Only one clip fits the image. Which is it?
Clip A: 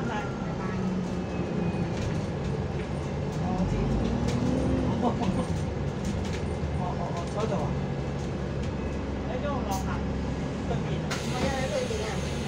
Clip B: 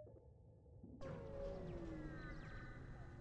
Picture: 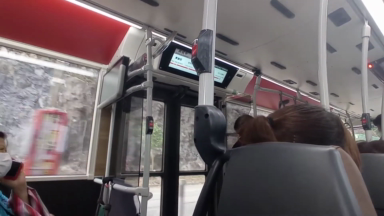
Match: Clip A